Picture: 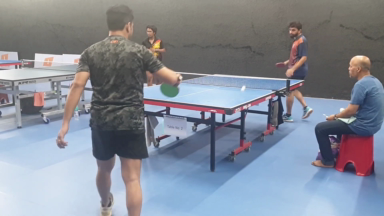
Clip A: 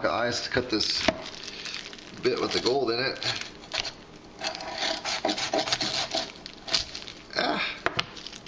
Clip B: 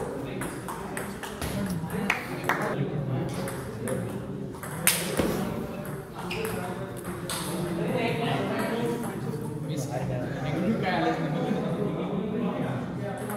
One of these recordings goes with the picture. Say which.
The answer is B